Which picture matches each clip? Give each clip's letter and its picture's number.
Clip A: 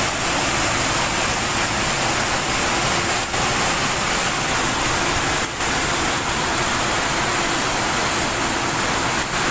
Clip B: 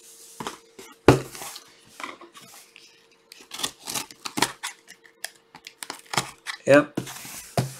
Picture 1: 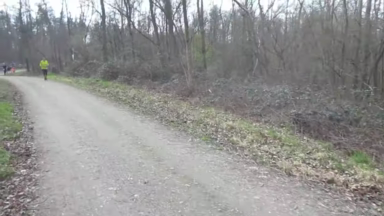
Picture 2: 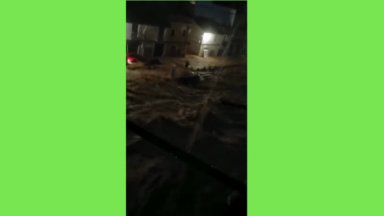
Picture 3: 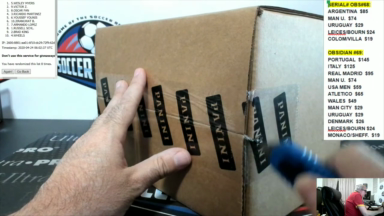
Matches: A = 2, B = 3